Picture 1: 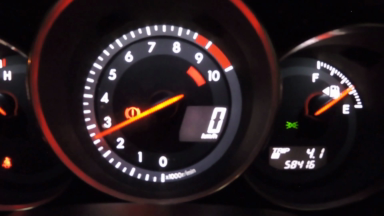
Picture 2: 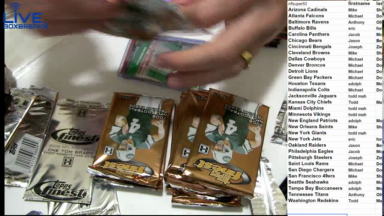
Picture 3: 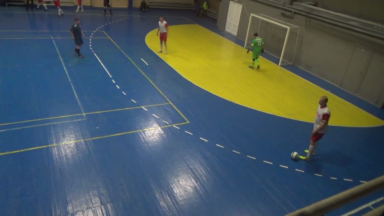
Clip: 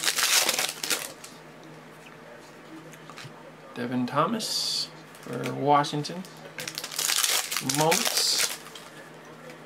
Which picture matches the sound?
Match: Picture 2